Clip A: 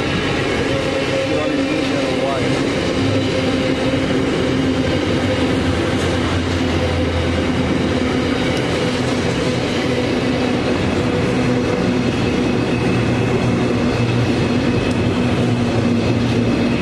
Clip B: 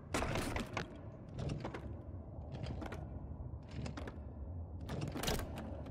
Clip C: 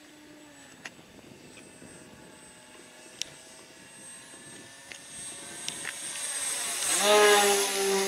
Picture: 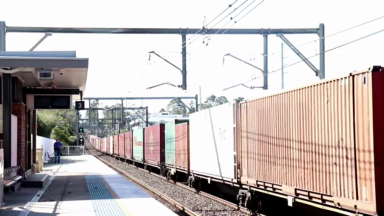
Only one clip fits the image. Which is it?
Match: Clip A